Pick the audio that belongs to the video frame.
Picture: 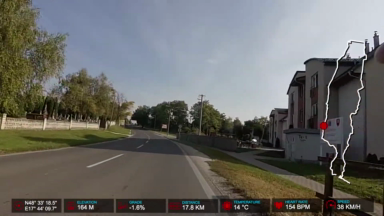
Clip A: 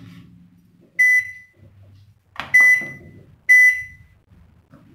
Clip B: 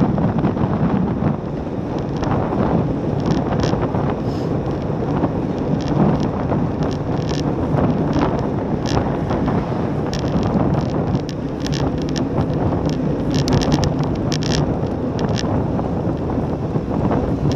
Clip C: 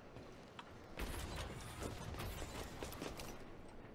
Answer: B